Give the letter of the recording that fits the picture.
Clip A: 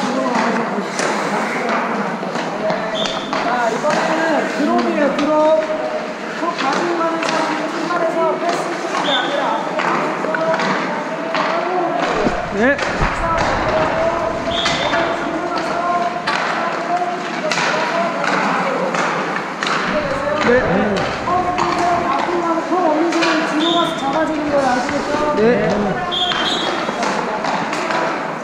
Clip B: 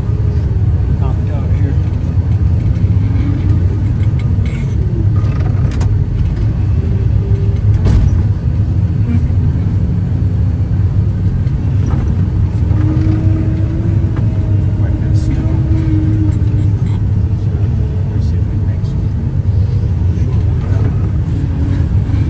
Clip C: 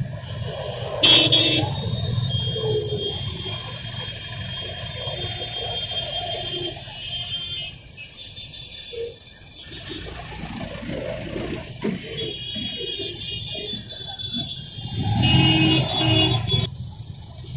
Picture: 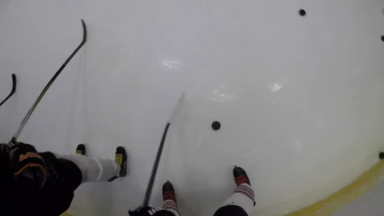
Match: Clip A